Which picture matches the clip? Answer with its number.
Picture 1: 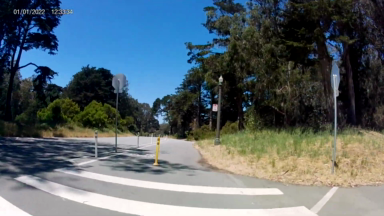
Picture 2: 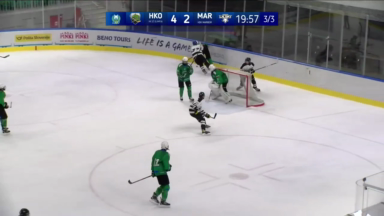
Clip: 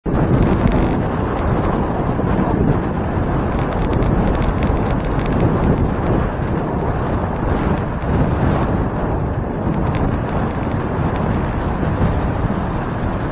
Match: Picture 1